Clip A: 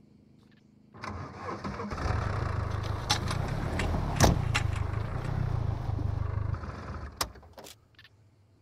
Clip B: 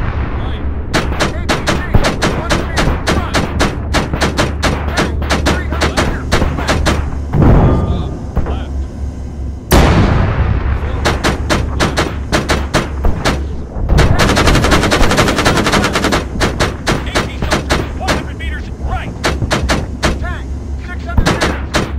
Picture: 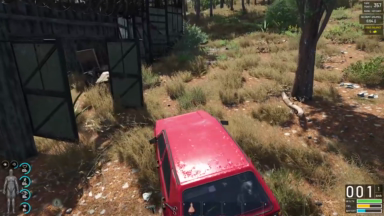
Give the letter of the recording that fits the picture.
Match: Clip A